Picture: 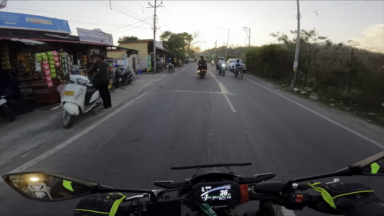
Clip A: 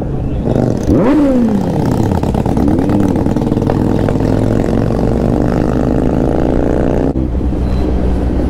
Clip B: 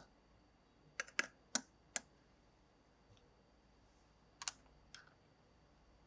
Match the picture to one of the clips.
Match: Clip A